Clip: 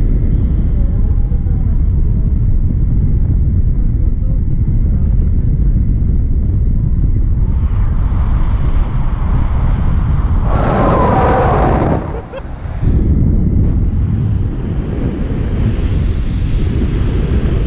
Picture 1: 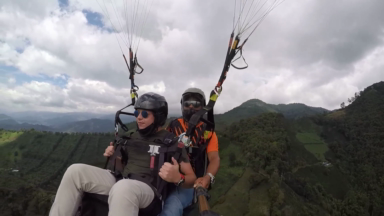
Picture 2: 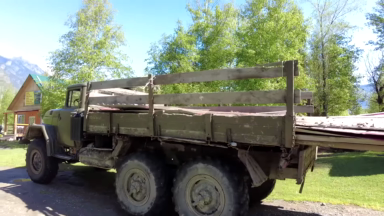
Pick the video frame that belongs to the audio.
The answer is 1